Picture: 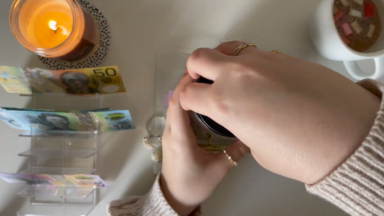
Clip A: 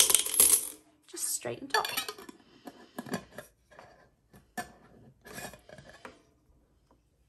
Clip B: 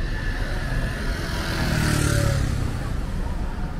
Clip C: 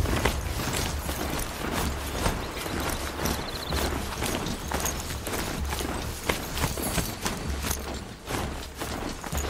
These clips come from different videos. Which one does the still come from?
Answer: A